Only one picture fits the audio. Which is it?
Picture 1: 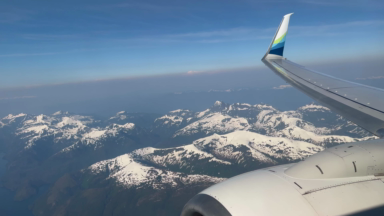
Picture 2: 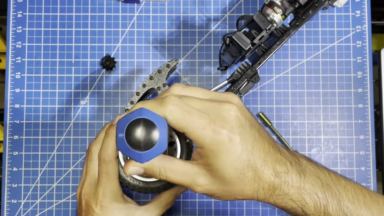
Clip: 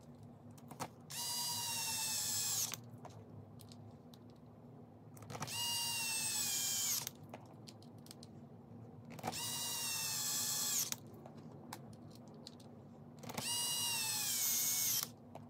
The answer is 2